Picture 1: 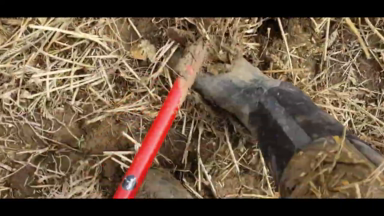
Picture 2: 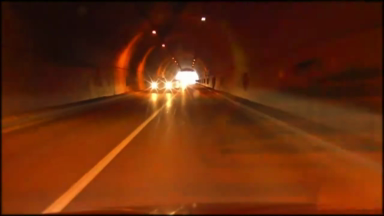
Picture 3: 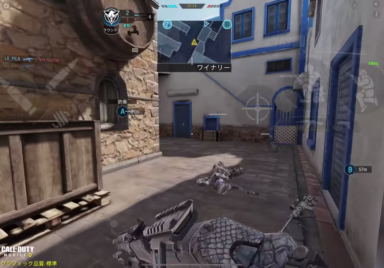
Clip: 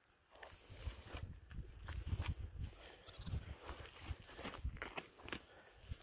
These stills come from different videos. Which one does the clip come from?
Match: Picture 1